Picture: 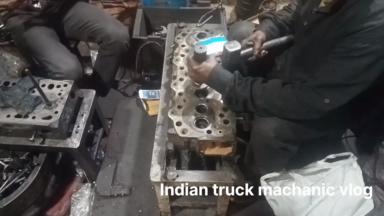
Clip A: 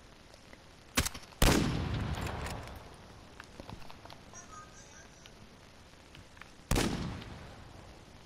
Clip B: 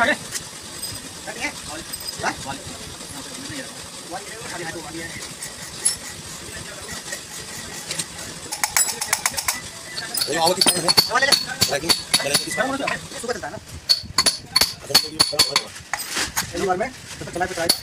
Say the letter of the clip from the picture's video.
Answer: B